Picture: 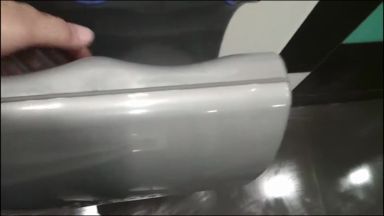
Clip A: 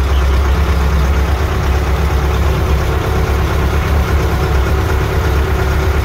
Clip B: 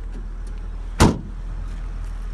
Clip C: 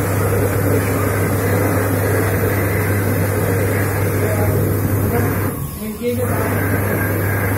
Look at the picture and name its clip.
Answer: C